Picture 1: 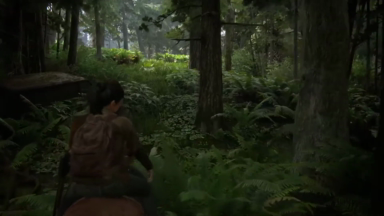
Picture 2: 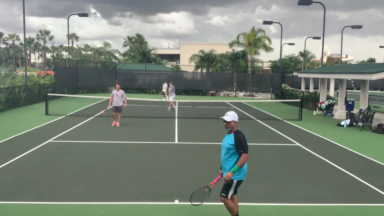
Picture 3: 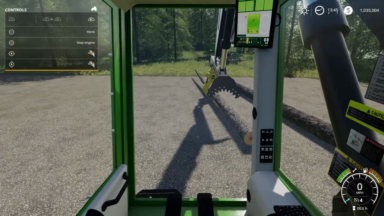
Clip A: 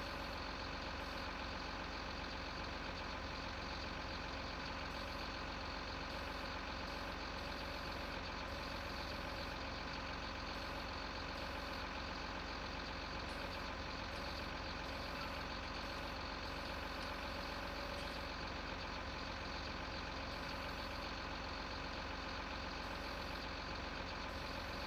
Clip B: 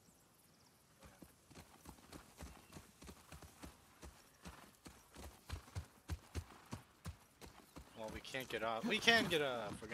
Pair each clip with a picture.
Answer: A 3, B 1